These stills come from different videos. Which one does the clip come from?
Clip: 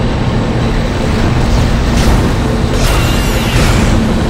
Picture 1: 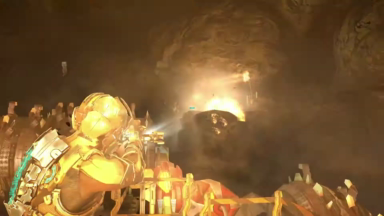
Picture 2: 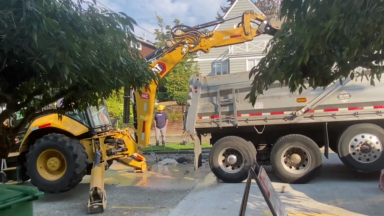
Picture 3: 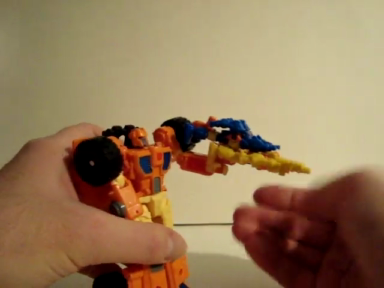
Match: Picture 1